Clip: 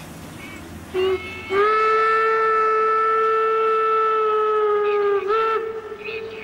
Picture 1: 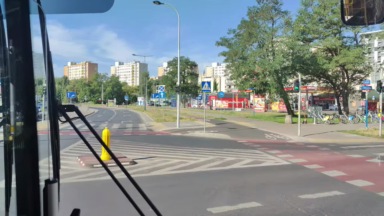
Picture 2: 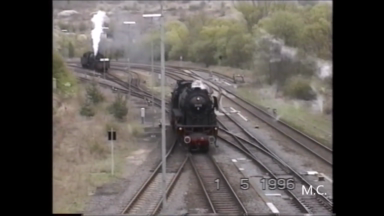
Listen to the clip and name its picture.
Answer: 2